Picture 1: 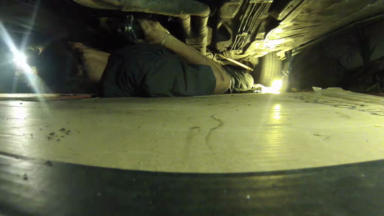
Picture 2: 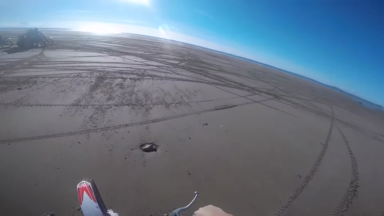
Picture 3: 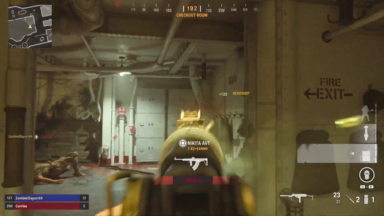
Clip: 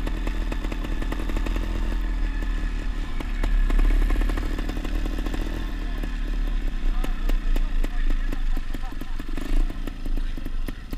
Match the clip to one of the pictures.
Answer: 2